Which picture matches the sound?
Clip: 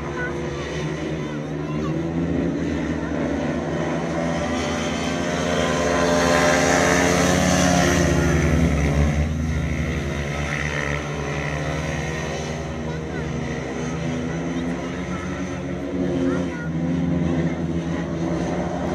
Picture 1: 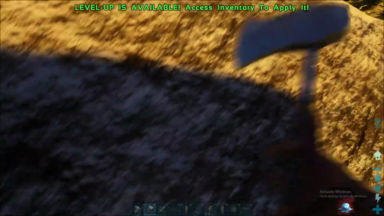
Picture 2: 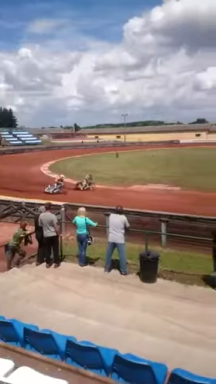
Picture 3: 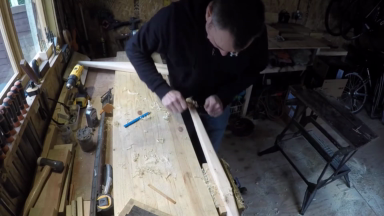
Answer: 2